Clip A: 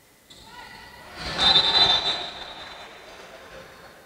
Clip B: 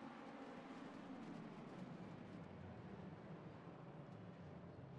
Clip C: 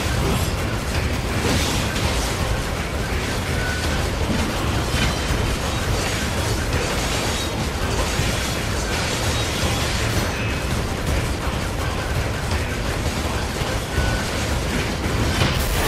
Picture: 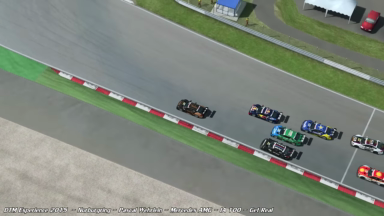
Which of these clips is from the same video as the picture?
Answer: B